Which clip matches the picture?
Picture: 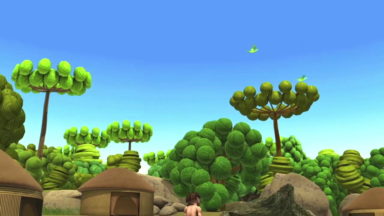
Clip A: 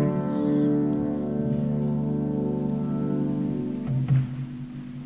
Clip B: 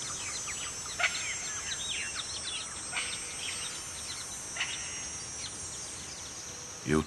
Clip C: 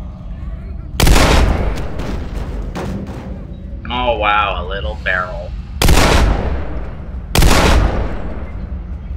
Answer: B